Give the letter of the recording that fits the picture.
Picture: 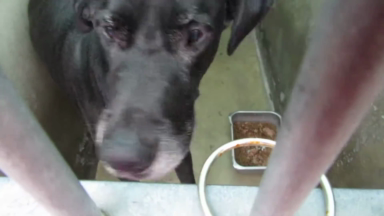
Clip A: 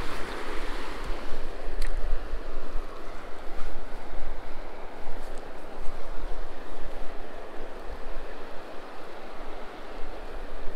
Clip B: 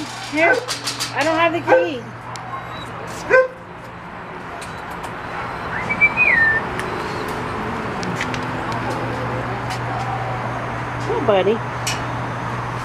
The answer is B